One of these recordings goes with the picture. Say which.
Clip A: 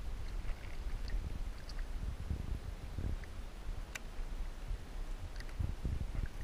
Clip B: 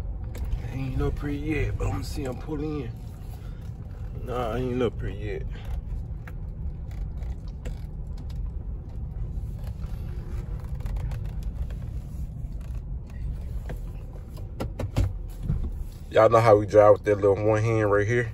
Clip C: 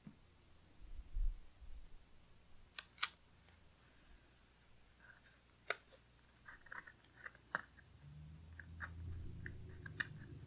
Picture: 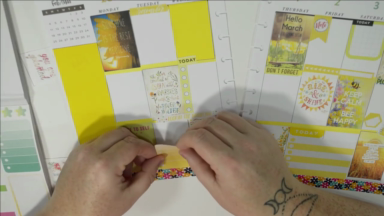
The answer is C